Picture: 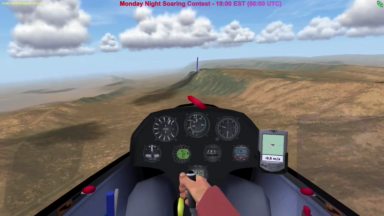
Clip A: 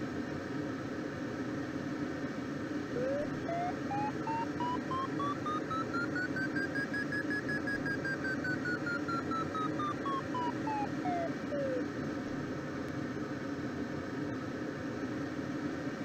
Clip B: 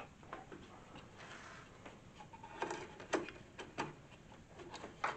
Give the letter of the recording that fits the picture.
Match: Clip A